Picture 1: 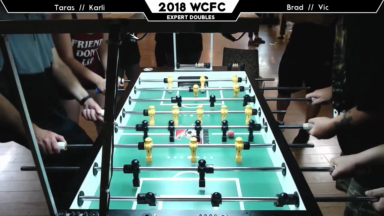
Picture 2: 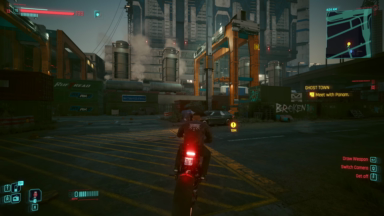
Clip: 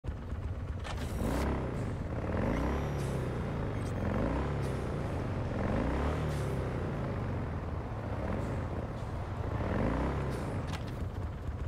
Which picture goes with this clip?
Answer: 2